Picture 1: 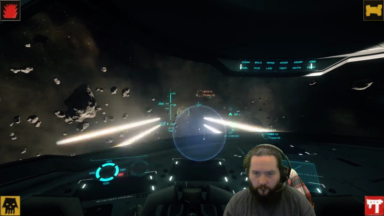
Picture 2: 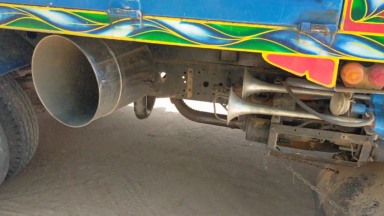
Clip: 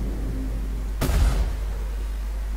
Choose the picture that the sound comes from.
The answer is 1